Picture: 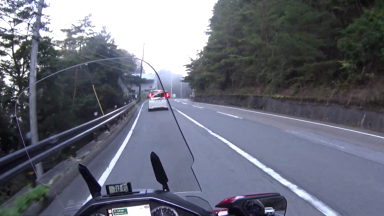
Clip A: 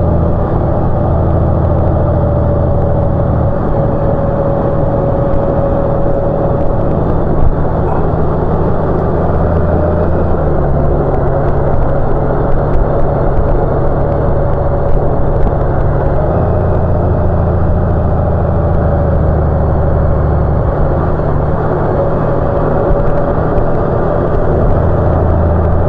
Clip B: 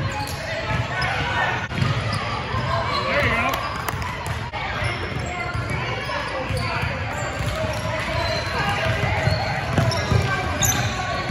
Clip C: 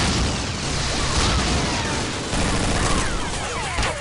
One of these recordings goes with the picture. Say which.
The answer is A